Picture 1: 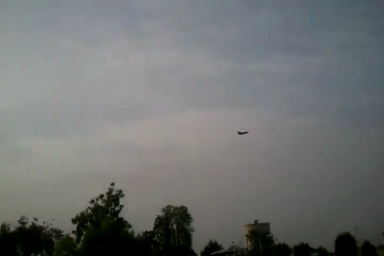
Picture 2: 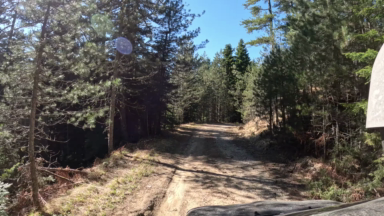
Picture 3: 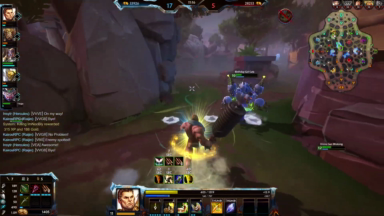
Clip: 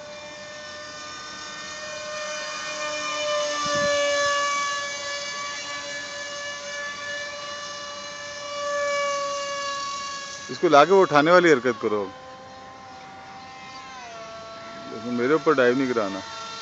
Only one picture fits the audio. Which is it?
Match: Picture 1